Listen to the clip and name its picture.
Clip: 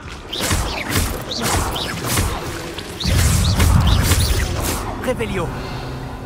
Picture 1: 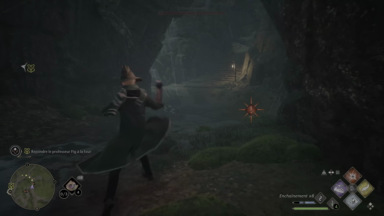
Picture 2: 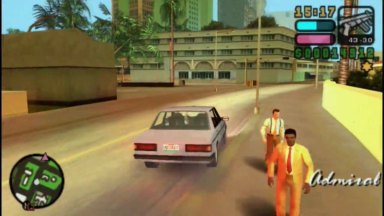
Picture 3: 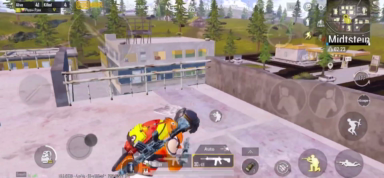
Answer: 1